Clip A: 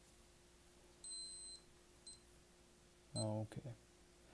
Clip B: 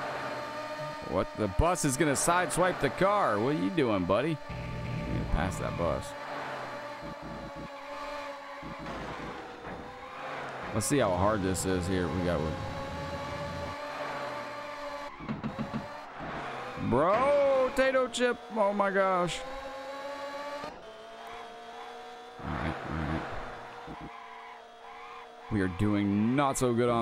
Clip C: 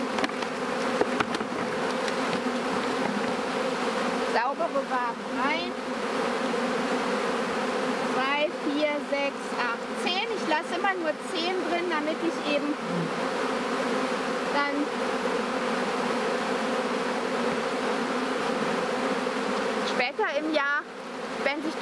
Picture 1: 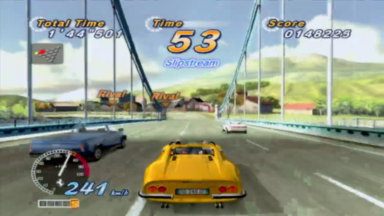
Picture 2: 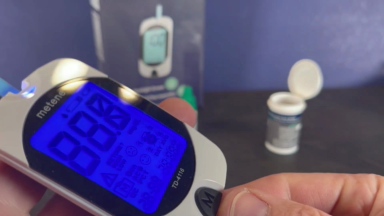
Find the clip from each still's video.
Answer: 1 B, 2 A